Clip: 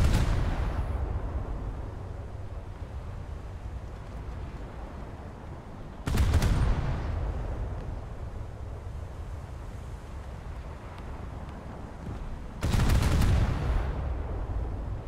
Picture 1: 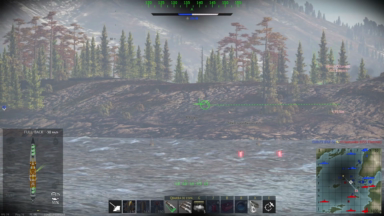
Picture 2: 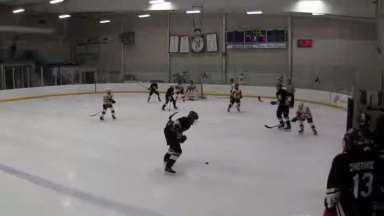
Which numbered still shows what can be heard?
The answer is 1